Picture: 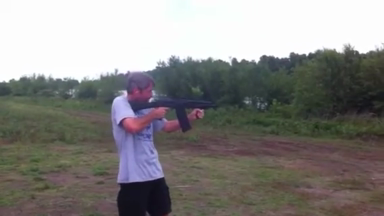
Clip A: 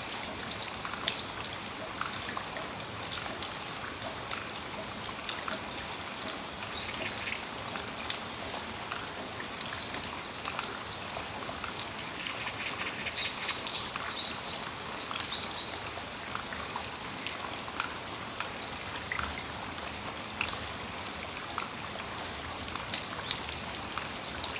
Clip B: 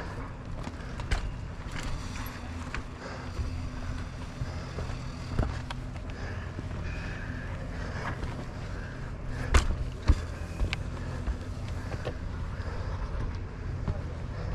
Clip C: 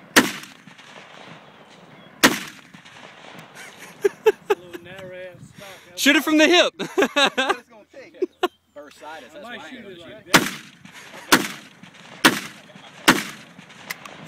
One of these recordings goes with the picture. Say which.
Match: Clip C